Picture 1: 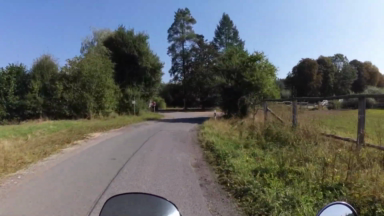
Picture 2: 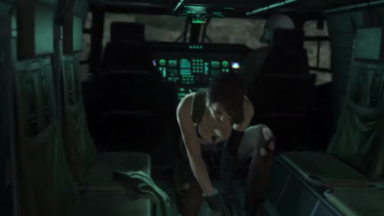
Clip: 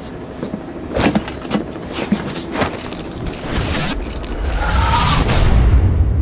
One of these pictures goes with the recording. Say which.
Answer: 2